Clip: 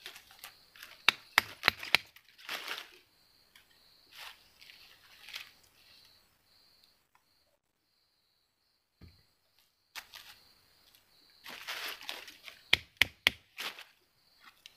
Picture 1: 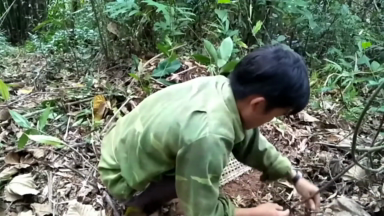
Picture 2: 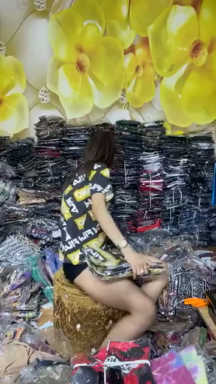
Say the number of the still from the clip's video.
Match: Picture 1